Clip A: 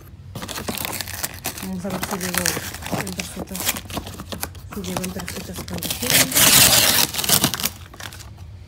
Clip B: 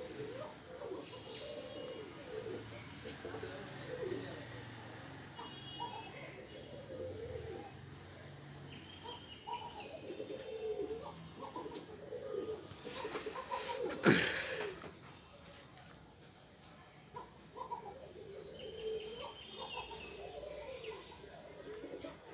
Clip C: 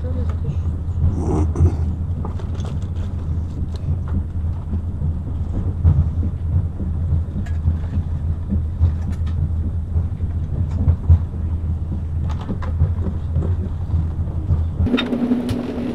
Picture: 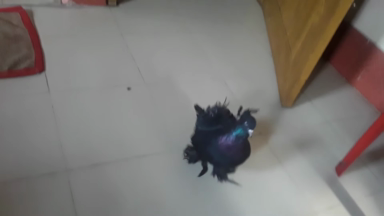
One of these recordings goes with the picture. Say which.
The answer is B